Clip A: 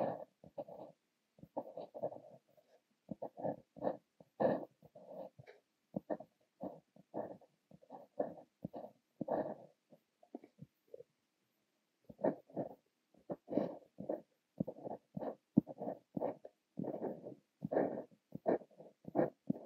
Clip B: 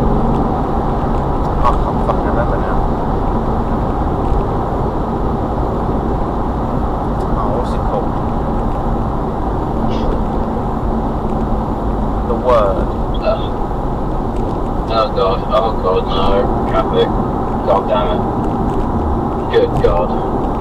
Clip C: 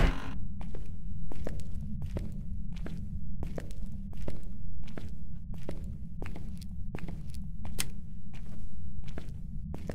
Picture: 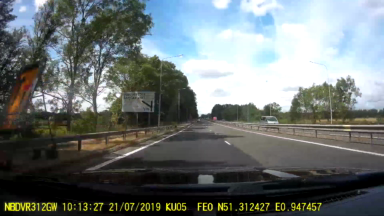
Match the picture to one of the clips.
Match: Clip B